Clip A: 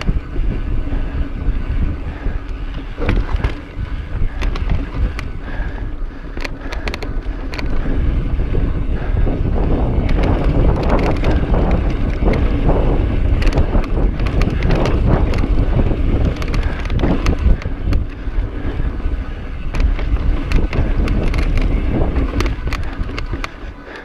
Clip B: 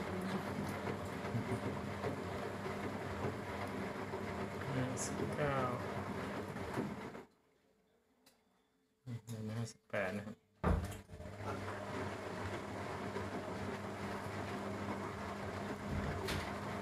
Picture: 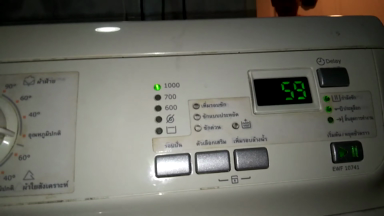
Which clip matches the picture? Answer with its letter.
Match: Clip B